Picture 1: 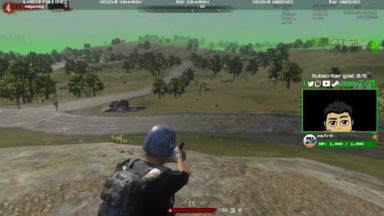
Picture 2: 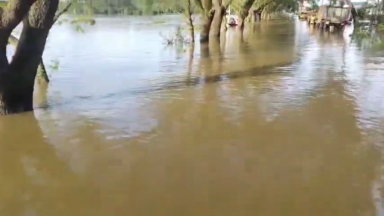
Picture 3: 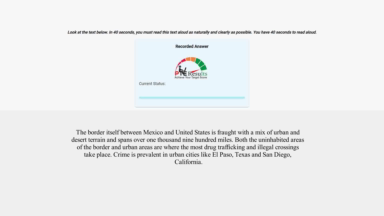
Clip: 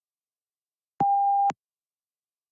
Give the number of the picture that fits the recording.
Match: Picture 3